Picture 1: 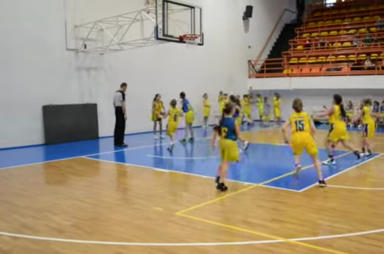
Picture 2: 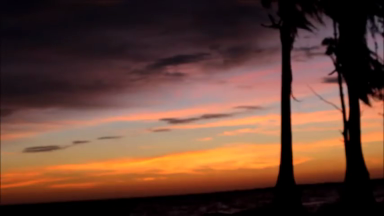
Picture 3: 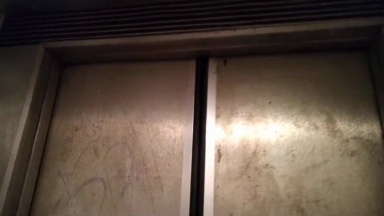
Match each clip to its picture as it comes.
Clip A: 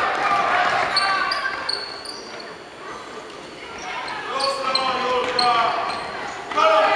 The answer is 1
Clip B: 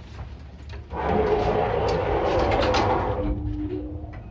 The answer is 3